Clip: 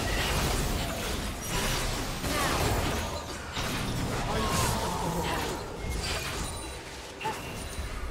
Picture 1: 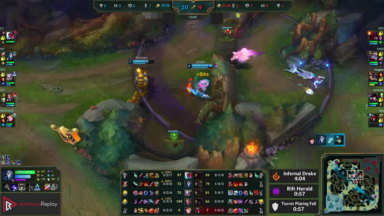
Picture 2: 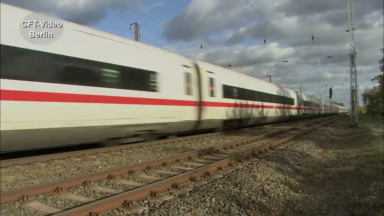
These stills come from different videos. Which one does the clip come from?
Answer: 1